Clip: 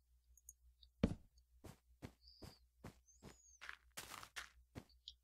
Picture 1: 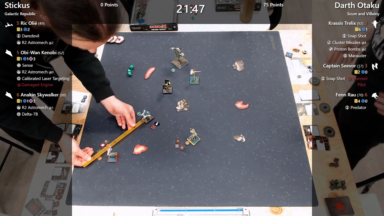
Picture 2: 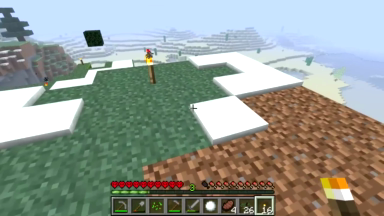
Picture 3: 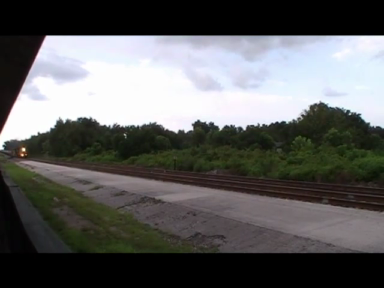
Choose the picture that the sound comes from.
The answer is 2